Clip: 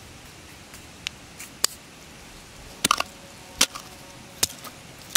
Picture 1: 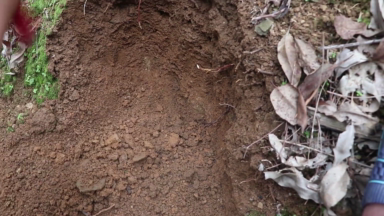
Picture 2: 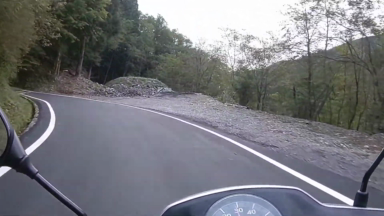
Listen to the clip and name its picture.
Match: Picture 1